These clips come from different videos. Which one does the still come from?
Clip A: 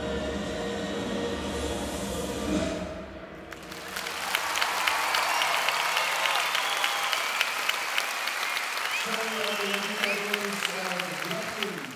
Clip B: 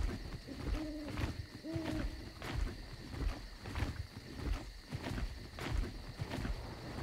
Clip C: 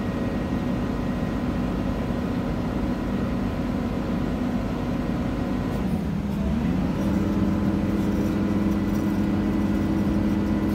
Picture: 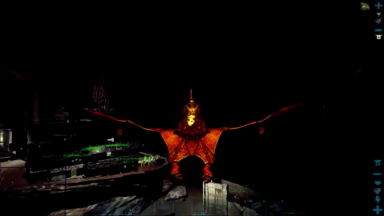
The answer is B